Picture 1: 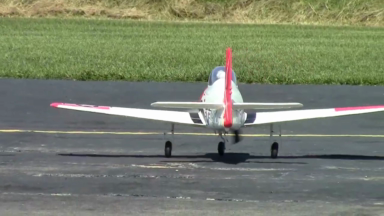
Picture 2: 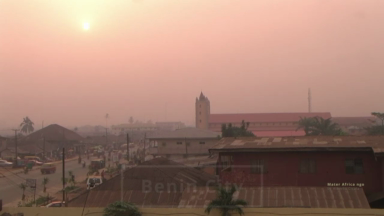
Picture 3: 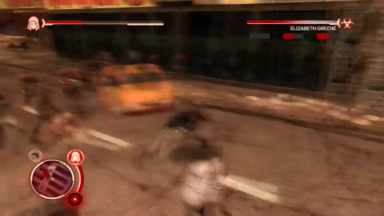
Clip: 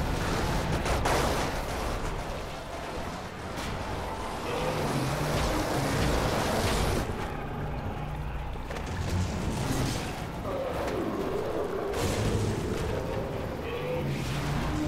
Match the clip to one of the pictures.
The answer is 3